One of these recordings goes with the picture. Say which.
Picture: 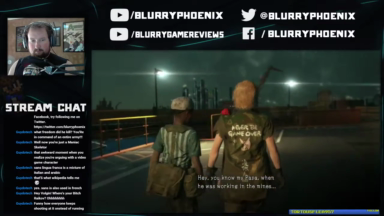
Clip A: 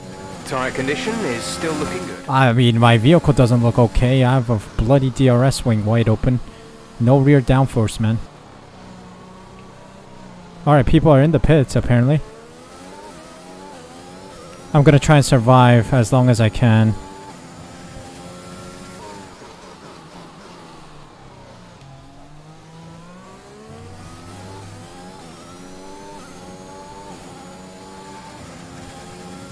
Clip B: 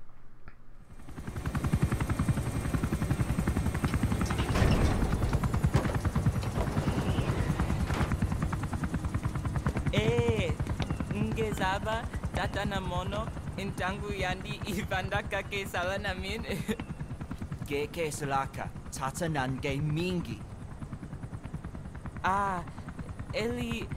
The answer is B